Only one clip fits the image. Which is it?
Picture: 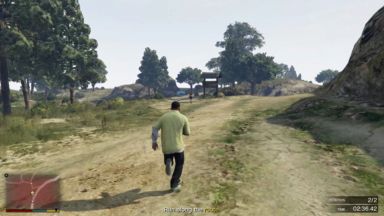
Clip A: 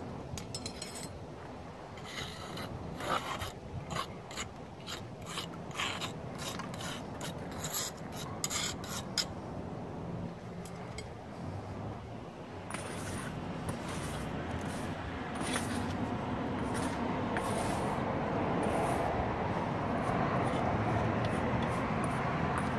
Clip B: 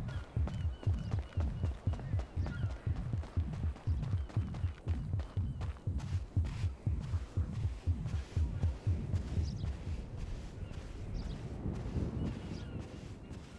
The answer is B